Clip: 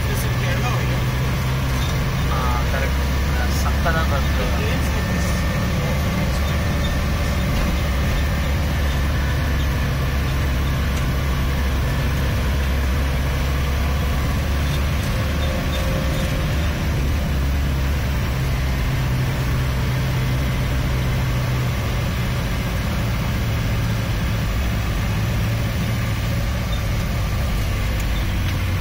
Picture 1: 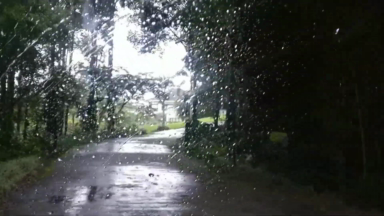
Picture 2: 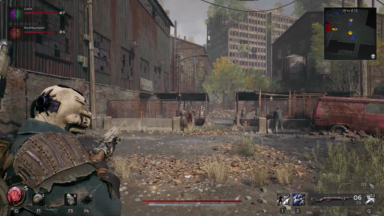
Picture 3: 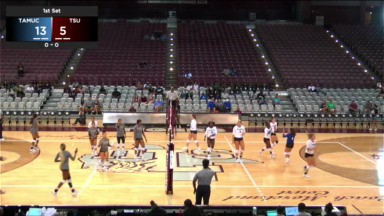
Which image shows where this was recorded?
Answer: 1